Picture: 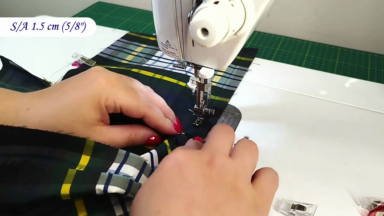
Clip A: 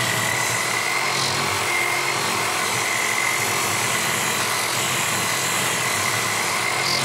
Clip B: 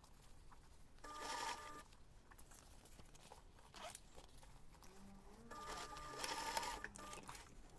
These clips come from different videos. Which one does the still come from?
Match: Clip B